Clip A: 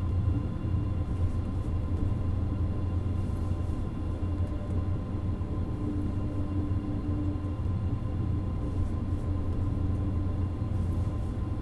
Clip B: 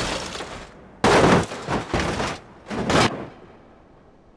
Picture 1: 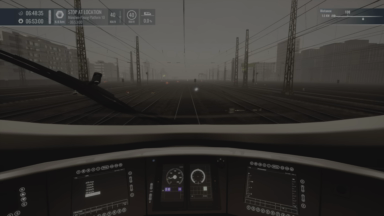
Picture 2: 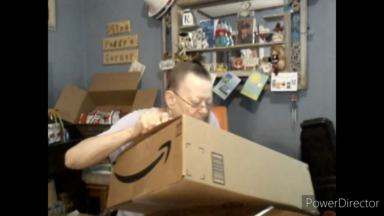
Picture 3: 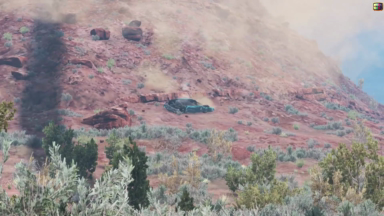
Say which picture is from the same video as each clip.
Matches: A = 1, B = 3